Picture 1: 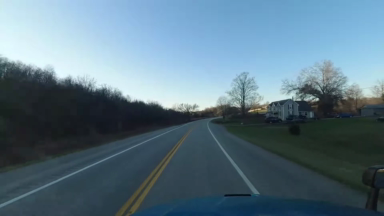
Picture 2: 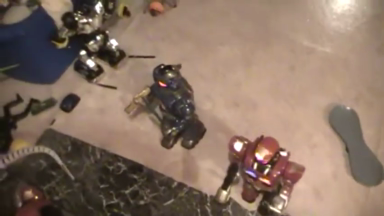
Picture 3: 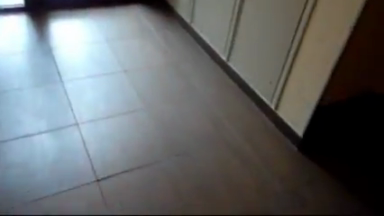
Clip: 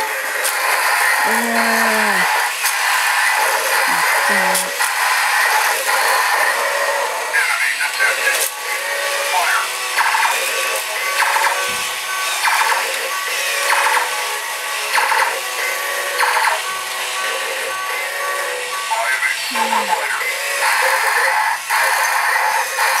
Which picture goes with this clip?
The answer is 2